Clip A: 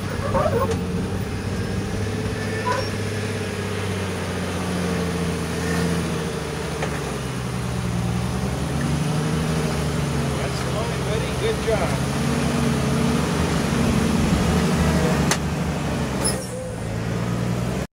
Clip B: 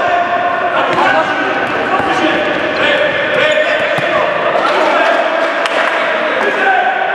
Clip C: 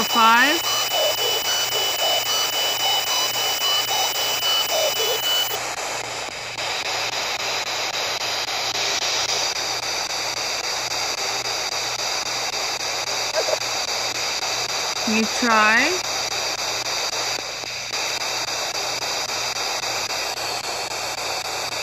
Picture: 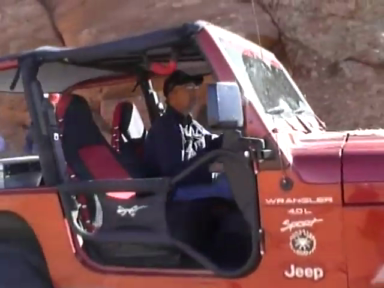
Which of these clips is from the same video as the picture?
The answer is A